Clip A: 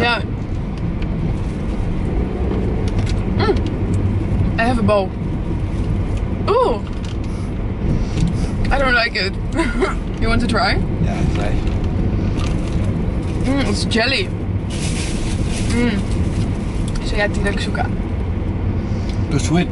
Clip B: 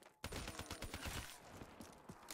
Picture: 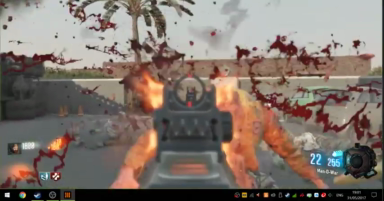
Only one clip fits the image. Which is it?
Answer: B